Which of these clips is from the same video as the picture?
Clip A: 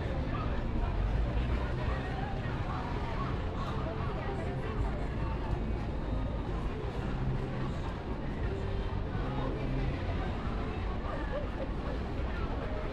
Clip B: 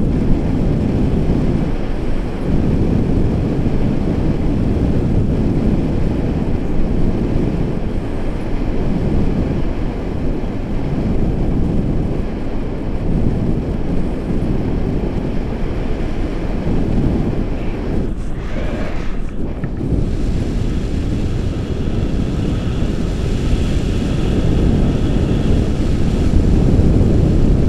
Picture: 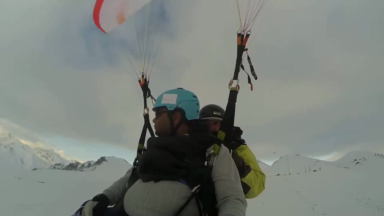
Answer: B